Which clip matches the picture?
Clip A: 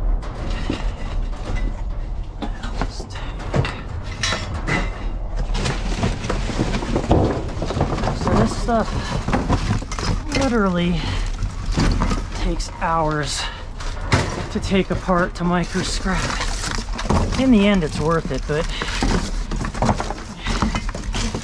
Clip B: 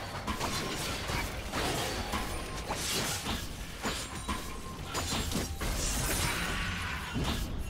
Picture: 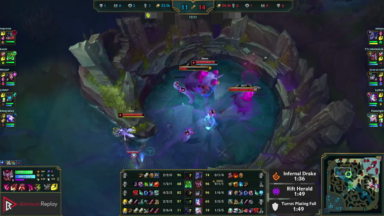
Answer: B